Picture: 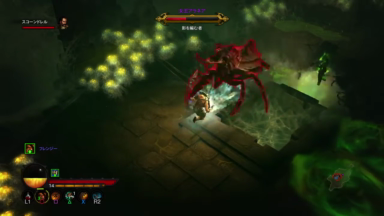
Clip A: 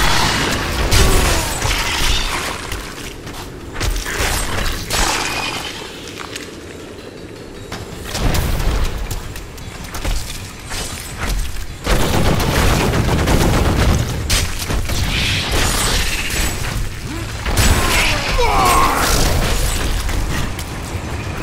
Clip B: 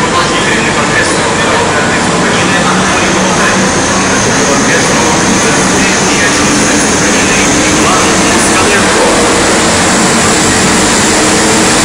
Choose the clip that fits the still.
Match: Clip A